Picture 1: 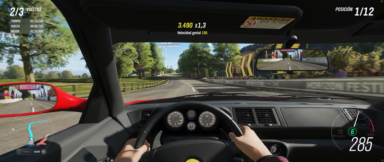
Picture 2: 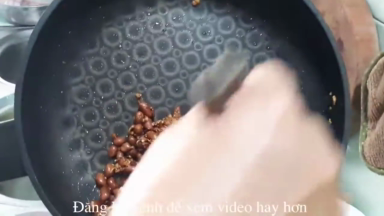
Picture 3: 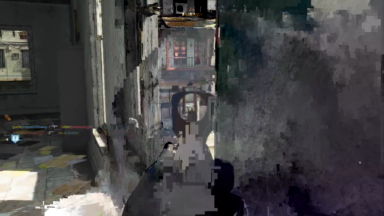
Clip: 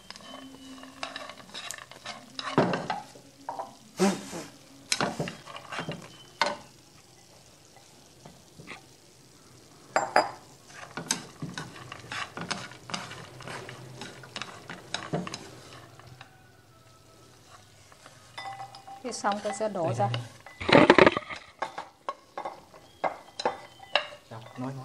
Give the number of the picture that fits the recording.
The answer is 2